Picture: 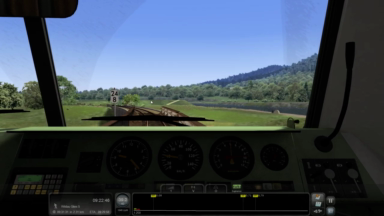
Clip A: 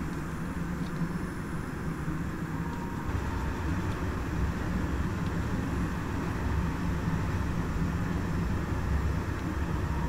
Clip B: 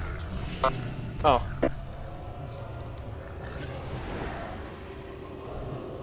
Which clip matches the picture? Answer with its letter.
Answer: A